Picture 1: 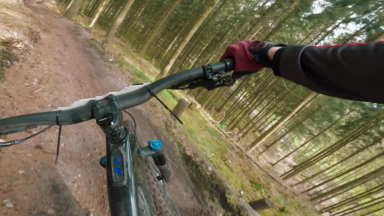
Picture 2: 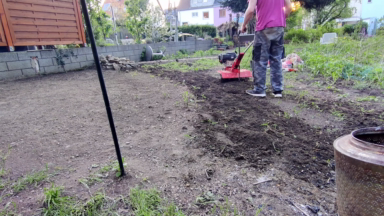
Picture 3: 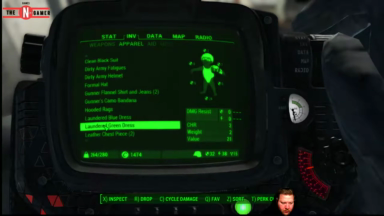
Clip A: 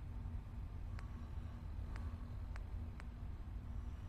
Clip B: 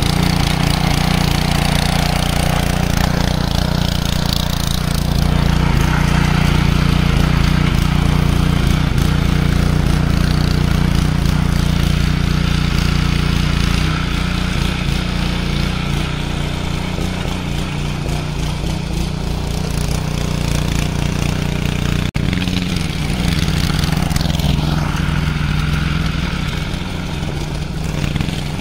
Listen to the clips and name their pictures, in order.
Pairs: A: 3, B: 2